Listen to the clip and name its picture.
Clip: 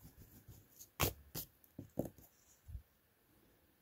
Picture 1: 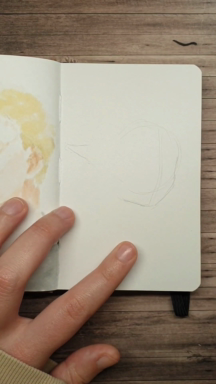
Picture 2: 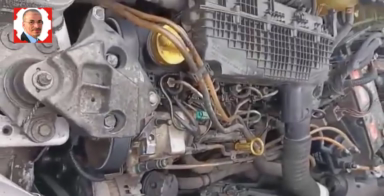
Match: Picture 1